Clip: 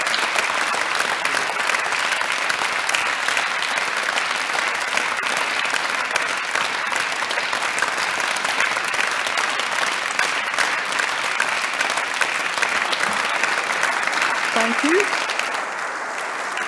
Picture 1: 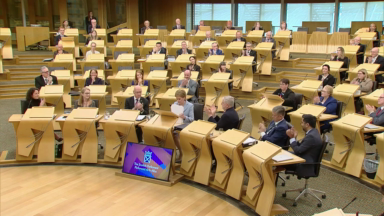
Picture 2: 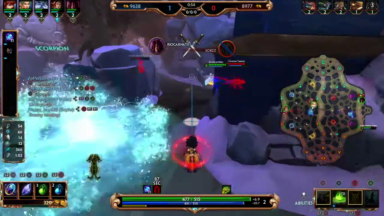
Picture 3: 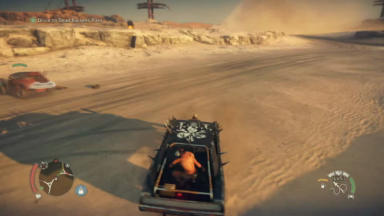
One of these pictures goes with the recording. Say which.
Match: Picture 1